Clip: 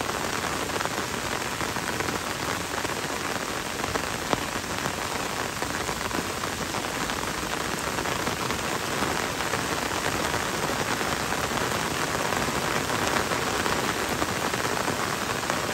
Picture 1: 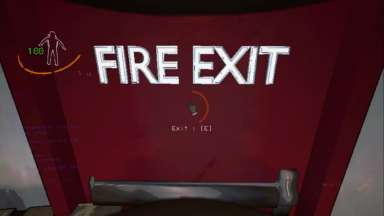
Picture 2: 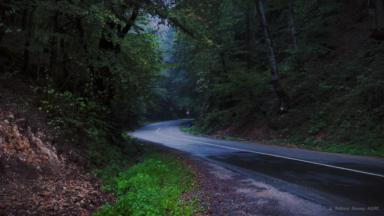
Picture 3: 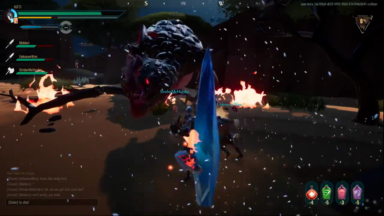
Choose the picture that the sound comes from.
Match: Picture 2